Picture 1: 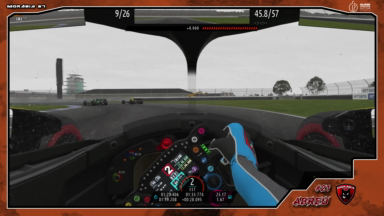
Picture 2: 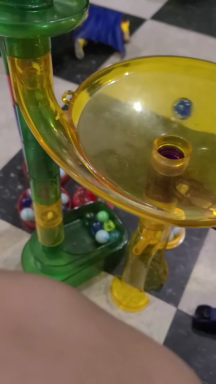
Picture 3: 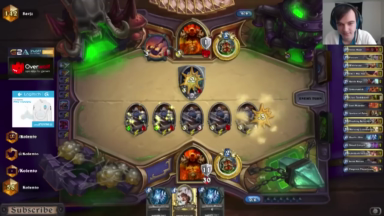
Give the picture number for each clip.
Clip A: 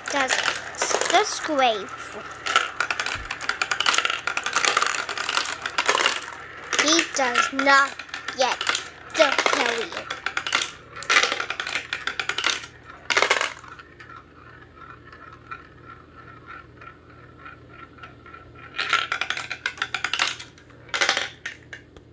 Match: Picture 2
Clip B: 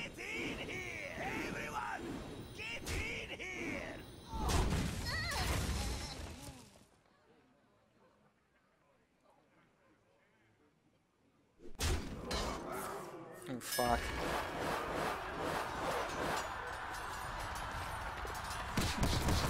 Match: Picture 3